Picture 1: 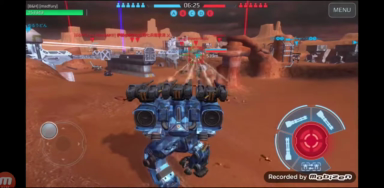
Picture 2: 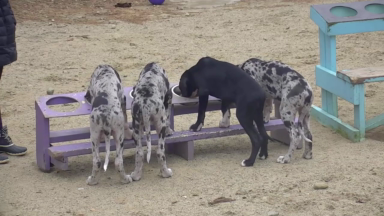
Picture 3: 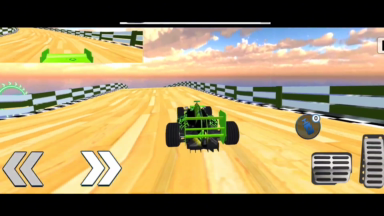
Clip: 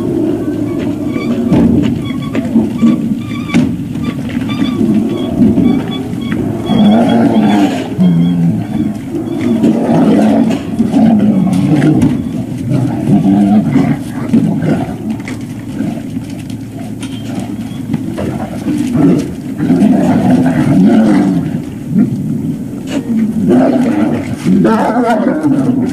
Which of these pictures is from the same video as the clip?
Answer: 2